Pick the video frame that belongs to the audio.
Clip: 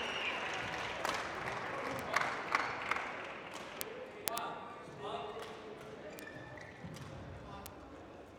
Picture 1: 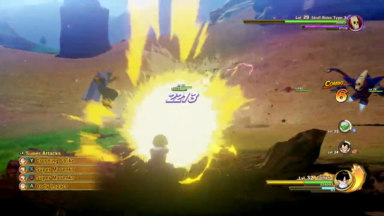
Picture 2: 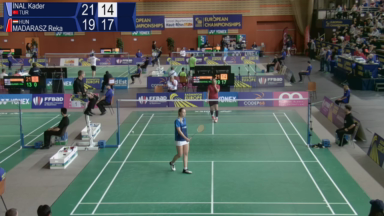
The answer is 2